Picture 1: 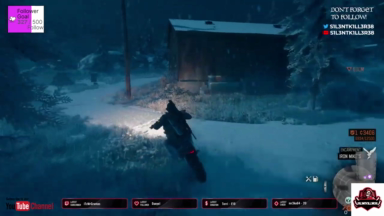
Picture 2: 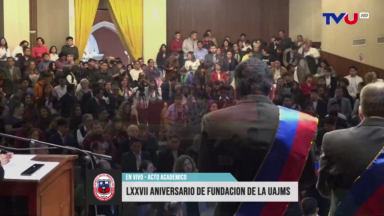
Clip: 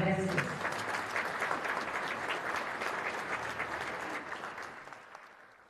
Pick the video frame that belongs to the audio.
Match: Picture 2